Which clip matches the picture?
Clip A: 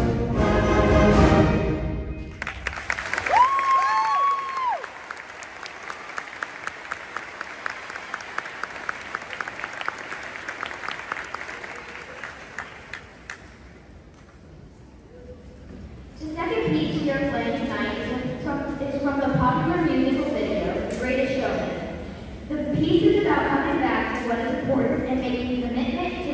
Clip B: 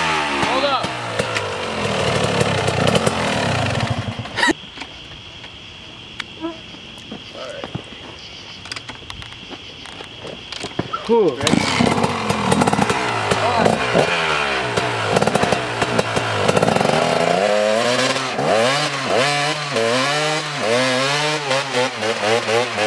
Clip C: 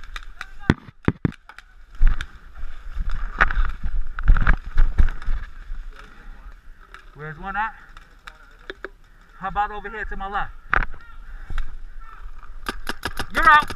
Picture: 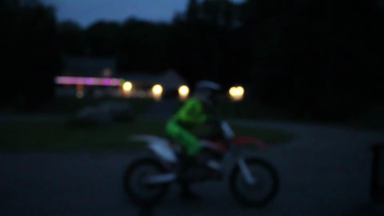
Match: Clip B